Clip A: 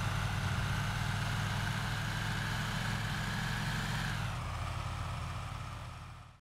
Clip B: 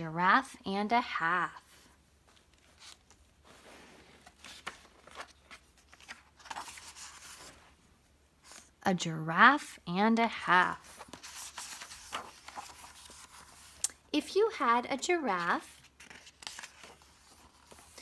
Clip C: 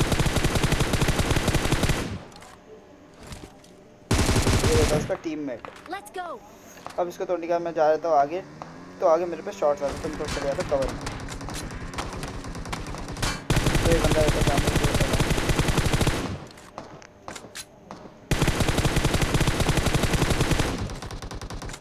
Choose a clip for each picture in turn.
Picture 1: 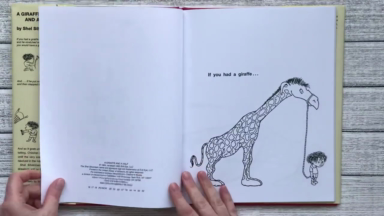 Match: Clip B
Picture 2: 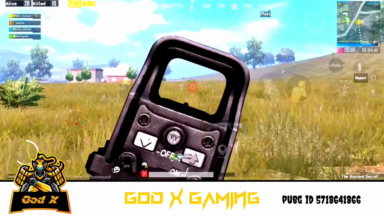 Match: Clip C